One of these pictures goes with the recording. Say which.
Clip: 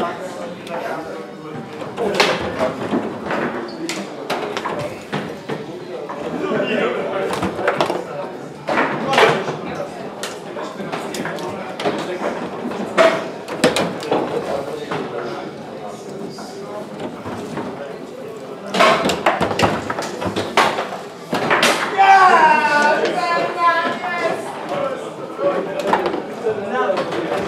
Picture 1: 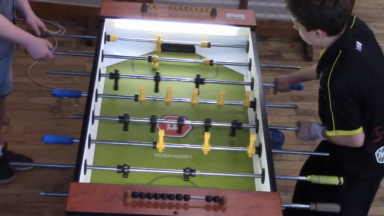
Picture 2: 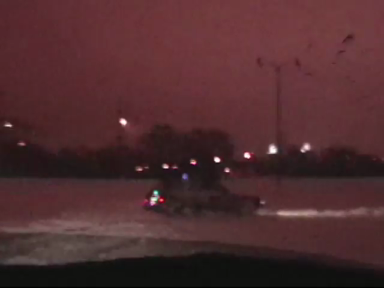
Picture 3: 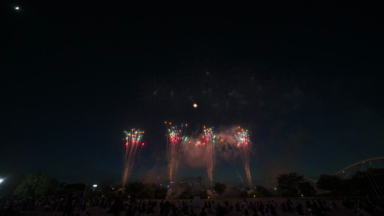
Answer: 1